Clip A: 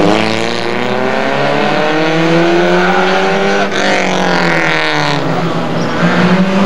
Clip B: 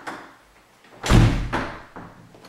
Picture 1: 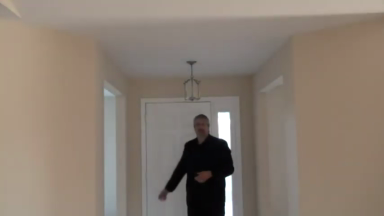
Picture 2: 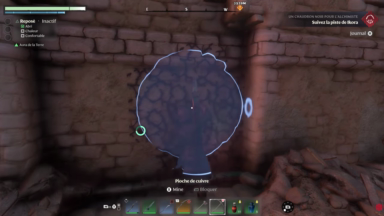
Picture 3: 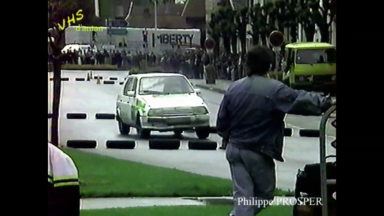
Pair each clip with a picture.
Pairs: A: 3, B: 1